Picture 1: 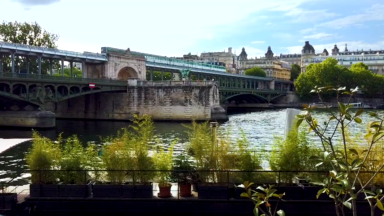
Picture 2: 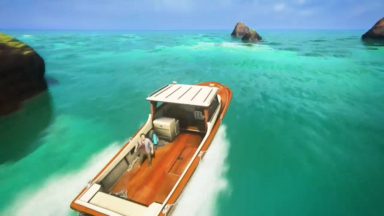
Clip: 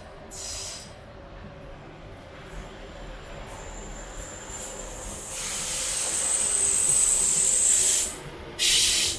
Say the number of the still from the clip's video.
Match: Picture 1